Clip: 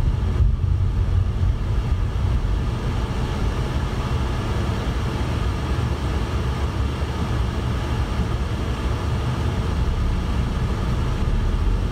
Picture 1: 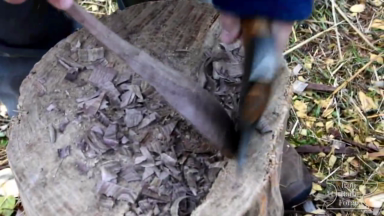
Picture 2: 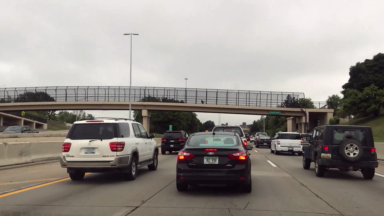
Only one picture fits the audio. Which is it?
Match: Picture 2